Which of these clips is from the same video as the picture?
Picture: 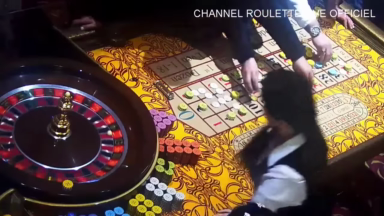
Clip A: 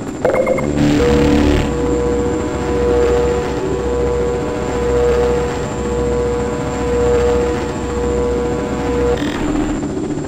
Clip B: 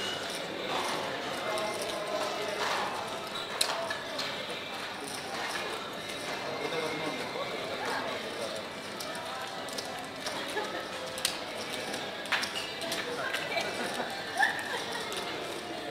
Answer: B